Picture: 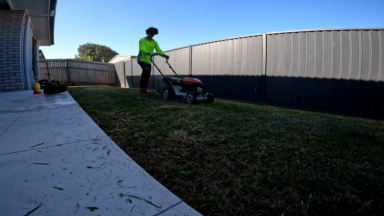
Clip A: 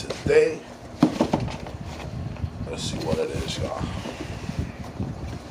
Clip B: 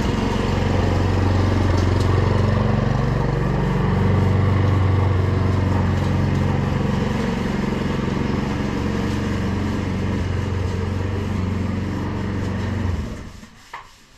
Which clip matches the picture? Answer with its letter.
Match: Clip B